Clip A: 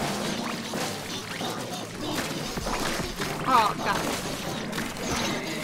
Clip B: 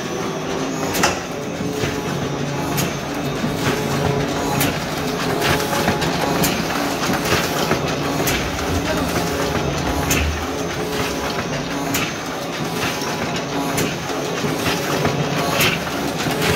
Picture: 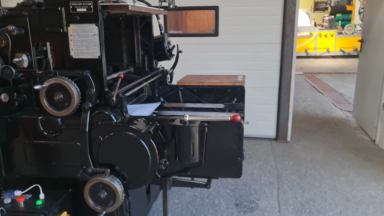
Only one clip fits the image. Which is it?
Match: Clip B